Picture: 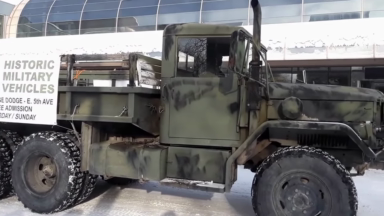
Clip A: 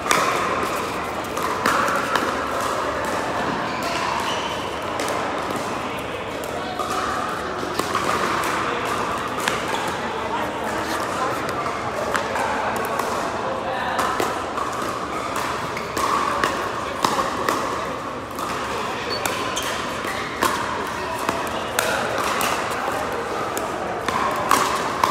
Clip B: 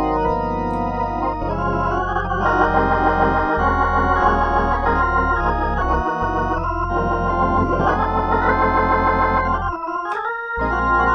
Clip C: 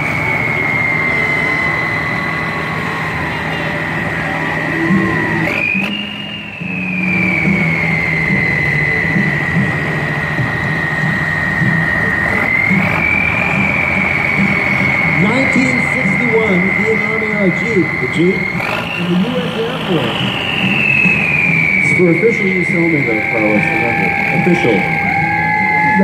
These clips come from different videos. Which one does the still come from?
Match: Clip C